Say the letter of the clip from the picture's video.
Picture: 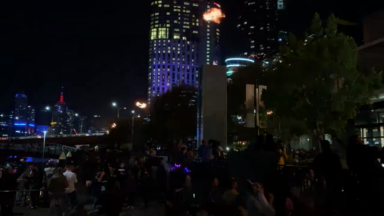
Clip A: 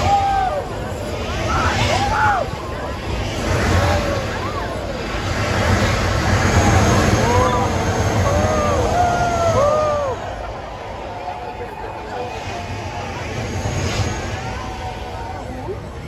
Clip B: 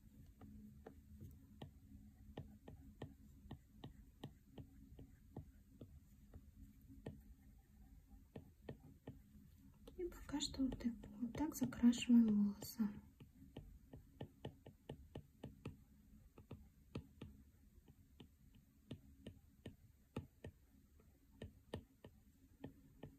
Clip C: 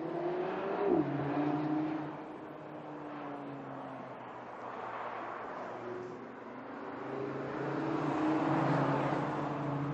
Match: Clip A